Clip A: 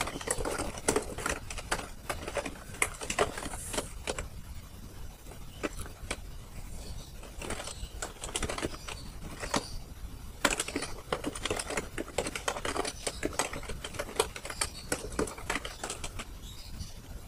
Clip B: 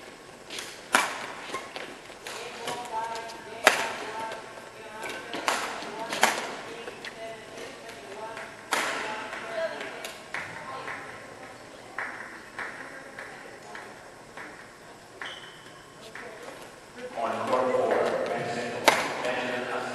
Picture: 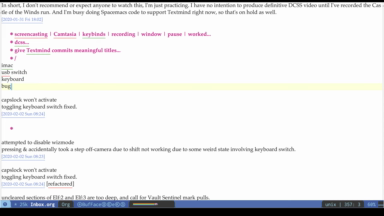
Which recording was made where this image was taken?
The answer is A